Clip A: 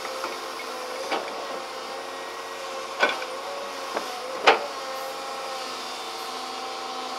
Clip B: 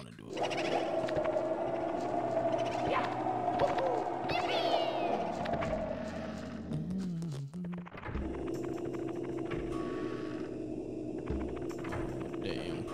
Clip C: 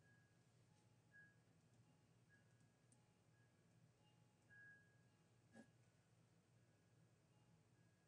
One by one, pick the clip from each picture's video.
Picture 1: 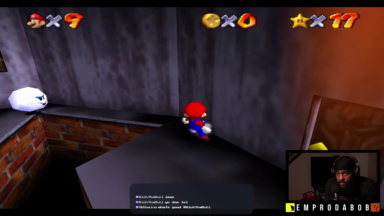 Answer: B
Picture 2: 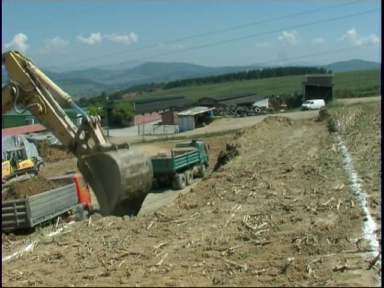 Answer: A